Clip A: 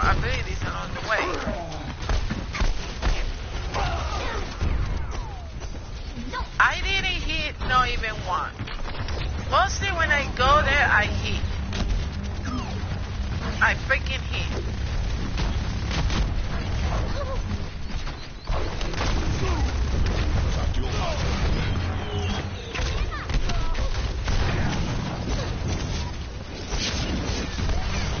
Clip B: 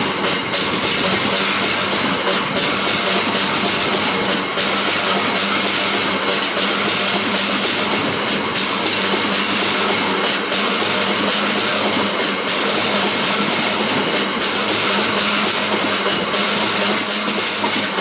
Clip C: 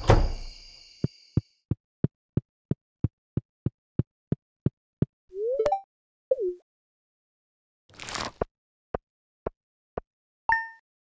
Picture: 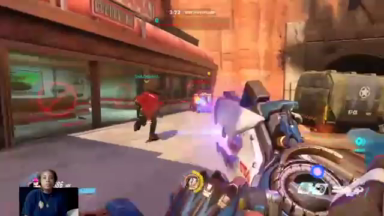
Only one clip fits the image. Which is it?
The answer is A